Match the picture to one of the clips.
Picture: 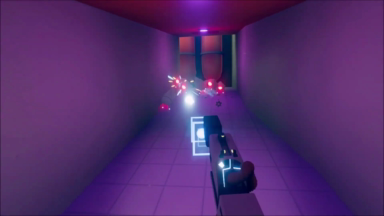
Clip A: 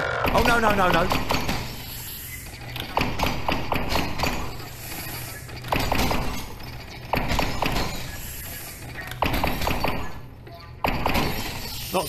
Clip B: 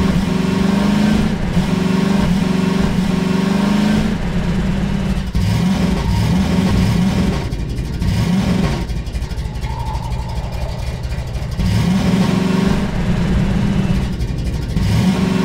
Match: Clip A